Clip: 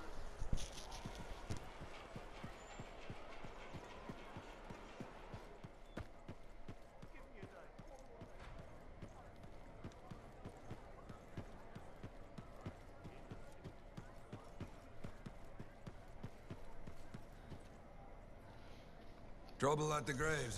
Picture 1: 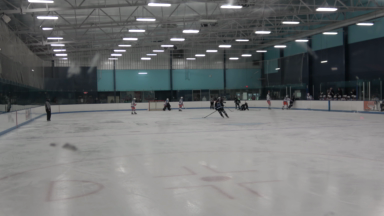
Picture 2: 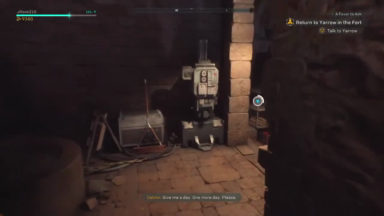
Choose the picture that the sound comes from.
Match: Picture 2